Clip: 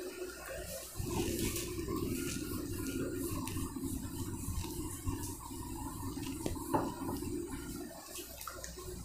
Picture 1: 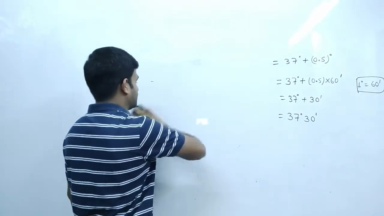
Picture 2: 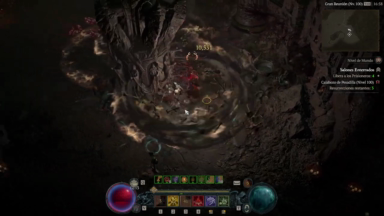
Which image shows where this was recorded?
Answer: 1